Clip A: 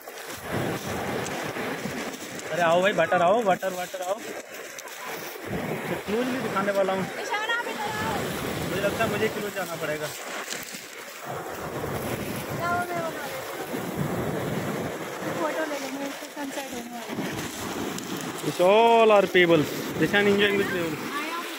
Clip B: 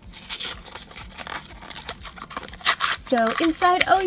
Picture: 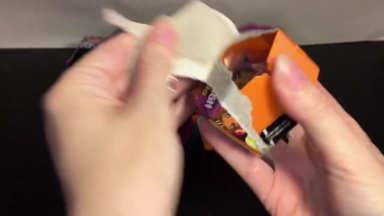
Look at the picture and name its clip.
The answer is B